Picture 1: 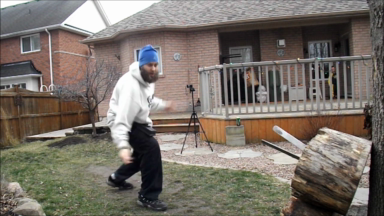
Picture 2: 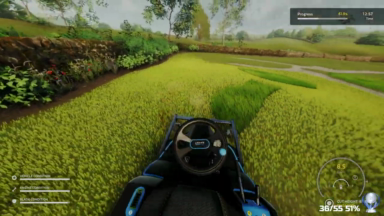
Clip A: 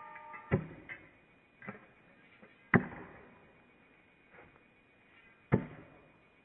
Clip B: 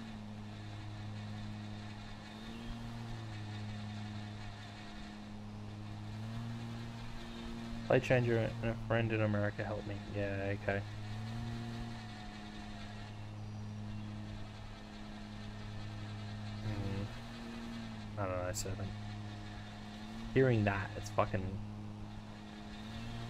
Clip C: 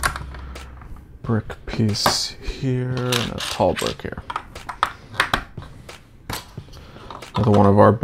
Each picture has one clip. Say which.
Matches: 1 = A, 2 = B